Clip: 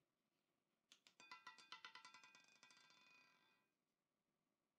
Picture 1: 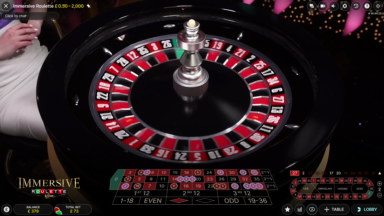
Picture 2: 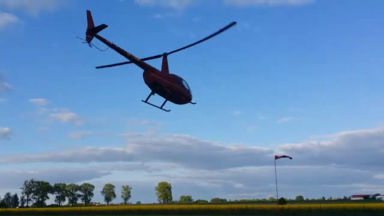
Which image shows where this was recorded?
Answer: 1